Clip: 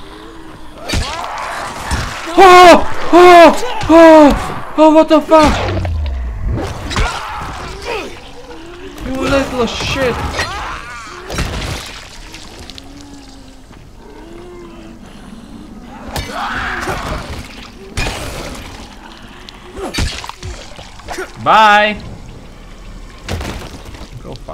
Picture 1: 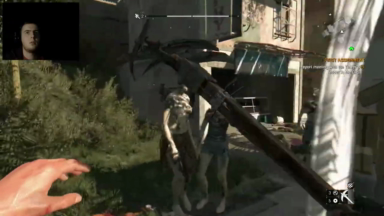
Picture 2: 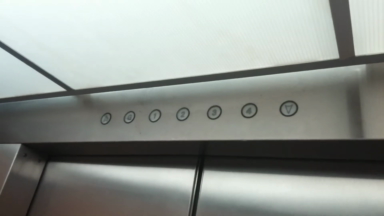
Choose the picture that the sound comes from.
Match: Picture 1